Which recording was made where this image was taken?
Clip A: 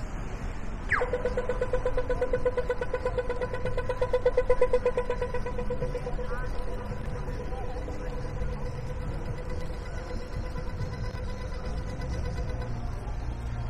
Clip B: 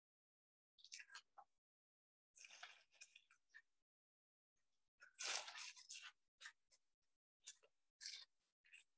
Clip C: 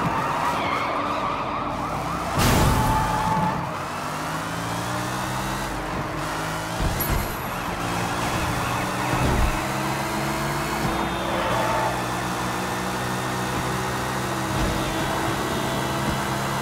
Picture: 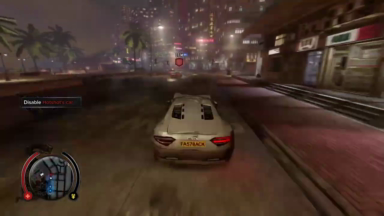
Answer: C